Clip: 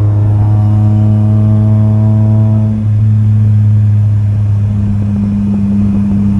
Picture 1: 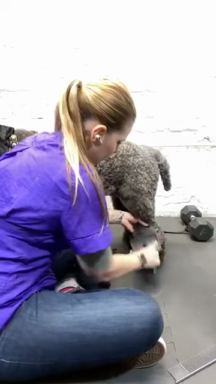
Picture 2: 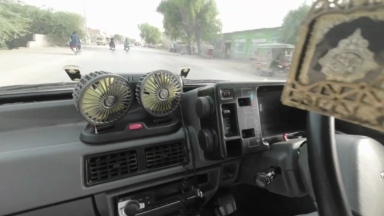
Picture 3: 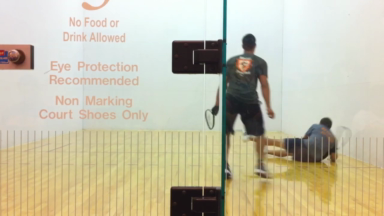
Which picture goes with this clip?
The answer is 2